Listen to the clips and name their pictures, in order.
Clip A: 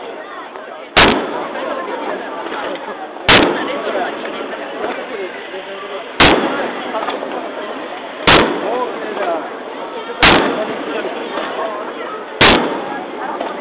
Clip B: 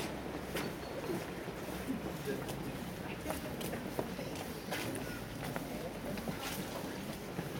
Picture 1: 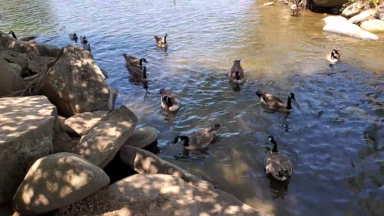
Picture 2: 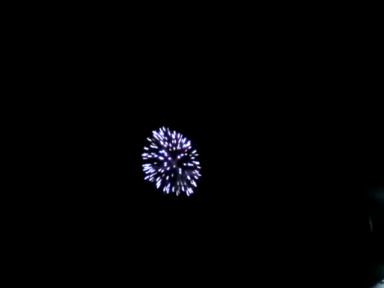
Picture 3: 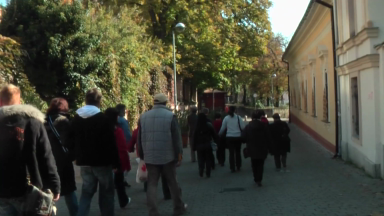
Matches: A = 2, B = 3